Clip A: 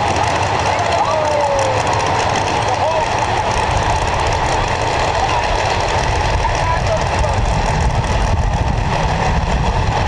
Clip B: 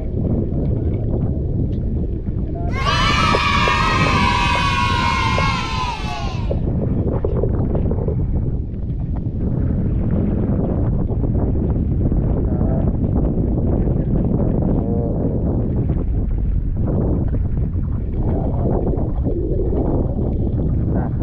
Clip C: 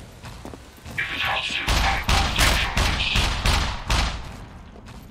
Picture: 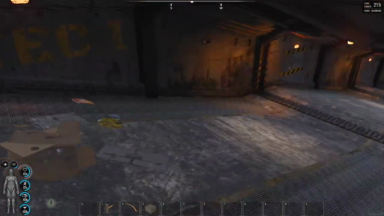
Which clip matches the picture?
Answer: C